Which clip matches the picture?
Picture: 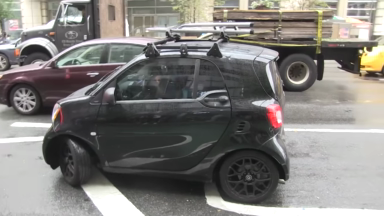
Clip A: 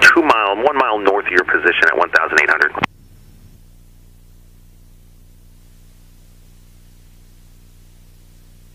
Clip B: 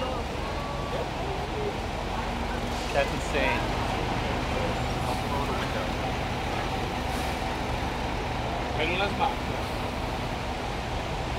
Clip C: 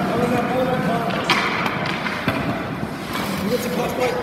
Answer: B